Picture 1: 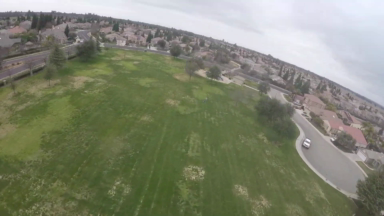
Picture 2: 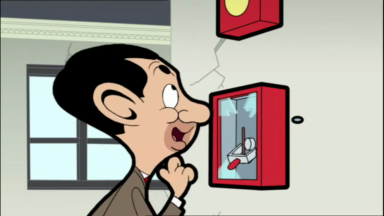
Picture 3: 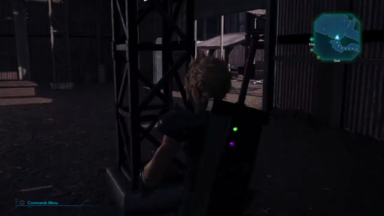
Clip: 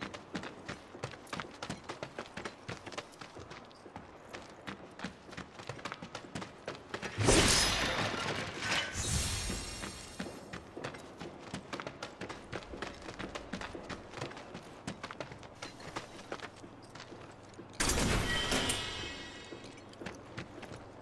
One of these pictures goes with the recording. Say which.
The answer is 3